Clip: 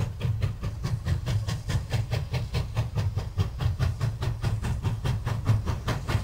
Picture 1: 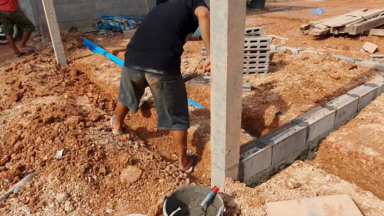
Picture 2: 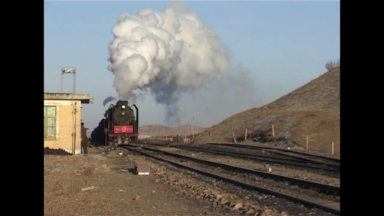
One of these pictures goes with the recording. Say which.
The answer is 2